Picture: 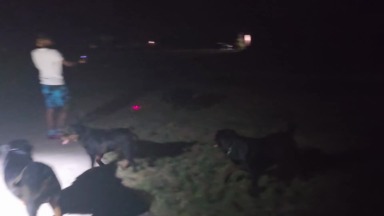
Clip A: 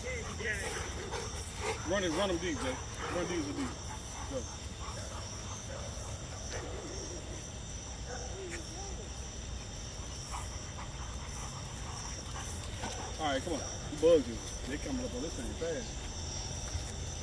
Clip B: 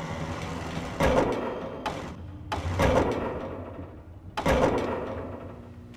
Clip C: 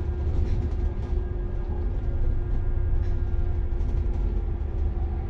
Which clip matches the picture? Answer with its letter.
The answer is A